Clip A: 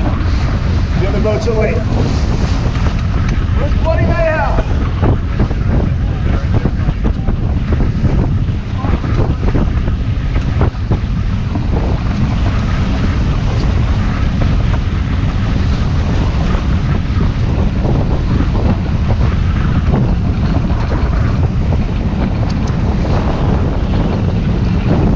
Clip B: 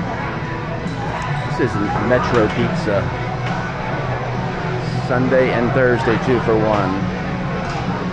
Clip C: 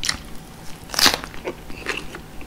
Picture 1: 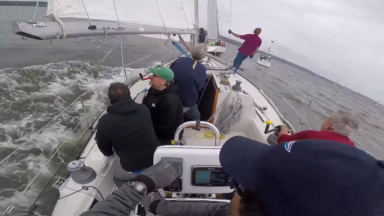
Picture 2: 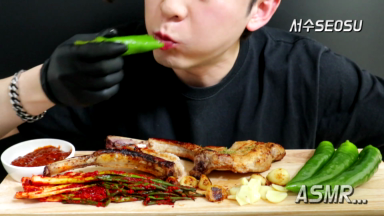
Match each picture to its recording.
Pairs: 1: A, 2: C